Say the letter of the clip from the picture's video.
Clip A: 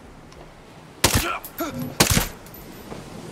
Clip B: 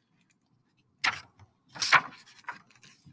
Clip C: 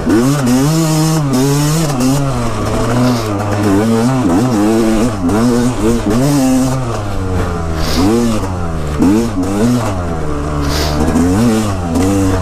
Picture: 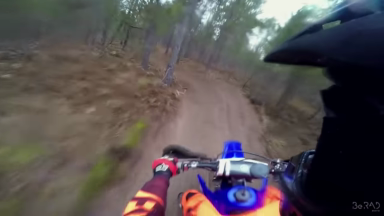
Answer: C